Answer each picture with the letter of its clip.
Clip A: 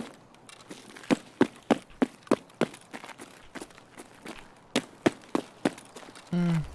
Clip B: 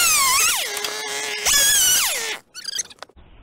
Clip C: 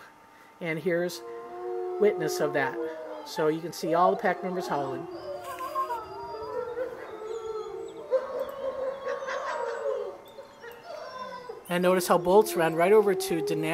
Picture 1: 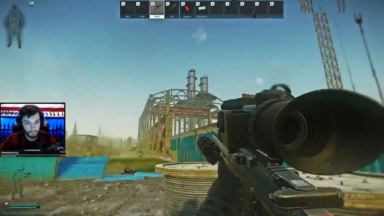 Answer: A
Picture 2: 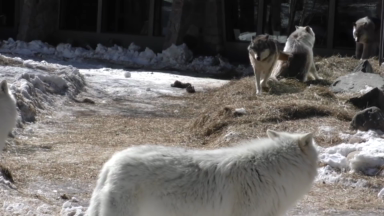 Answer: C